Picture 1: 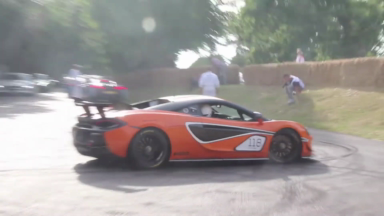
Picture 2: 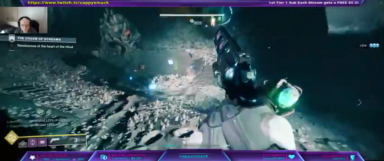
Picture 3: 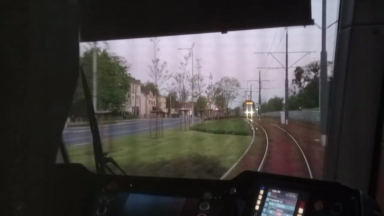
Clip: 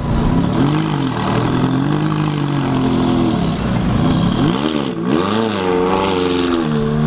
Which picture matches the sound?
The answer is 1